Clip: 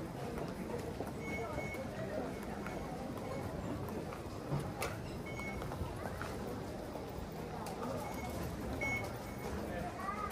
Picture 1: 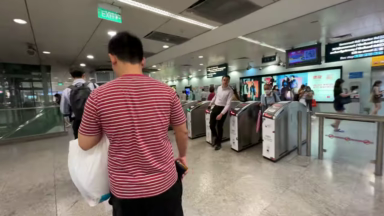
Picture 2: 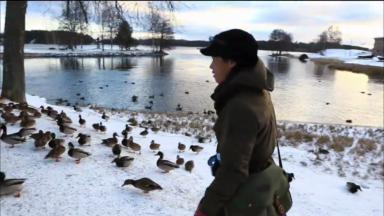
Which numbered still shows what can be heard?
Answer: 1